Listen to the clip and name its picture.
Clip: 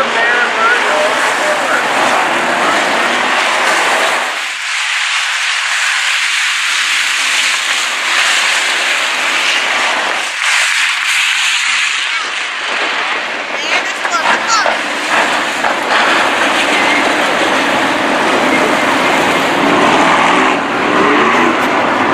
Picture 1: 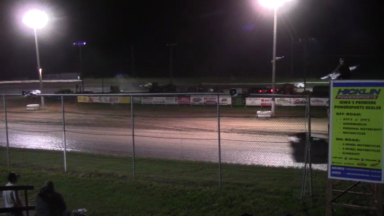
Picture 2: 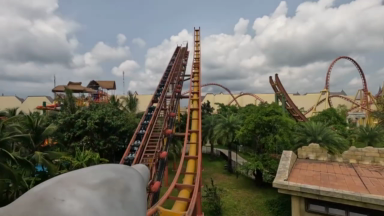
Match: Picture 1